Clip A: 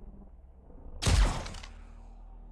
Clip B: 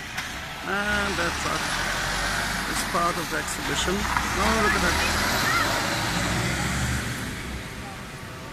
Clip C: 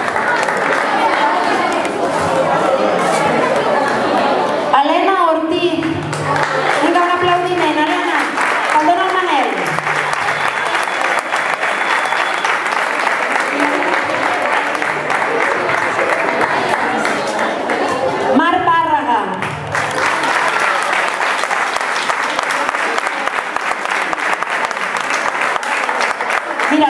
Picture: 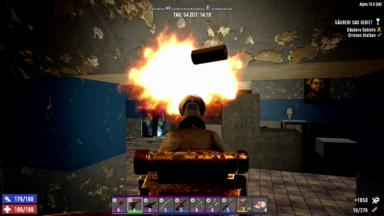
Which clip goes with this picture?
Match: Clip A